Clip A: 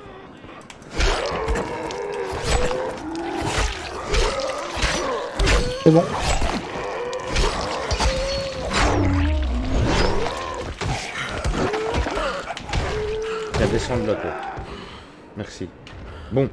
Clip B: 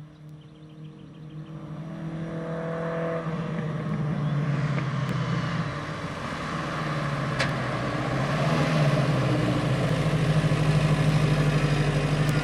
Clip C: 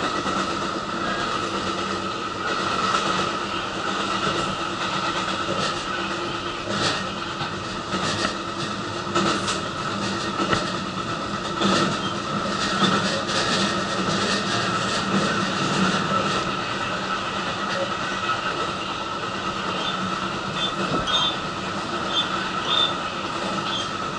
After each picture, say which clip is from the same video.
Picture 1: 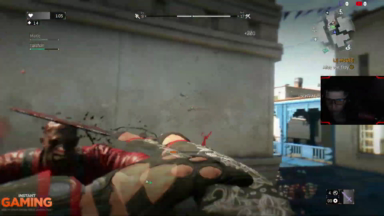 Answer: A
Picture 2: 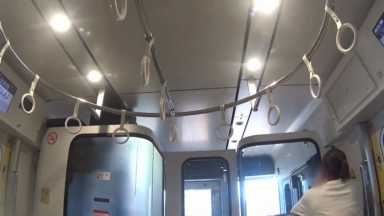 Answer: C